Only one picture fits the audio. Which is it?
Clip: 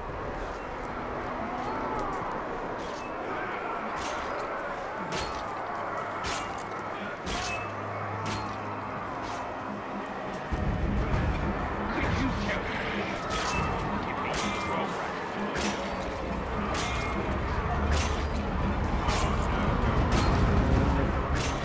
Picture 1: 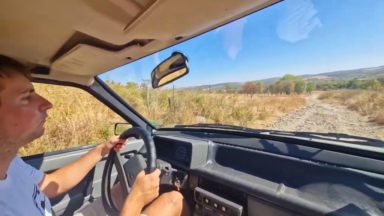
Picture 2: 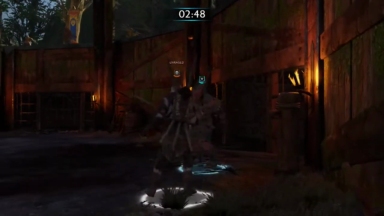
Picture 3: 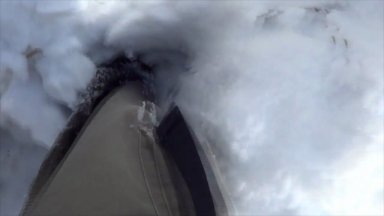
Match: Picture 2